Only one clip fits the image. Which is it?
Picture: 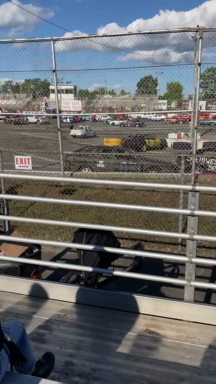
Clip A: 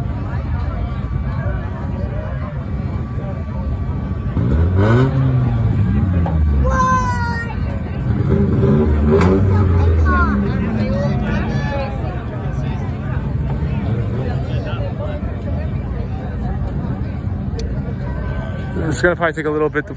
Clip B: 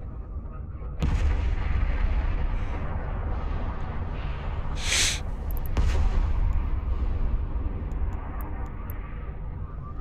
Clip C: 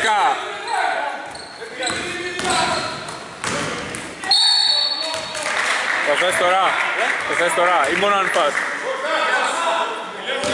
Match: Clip A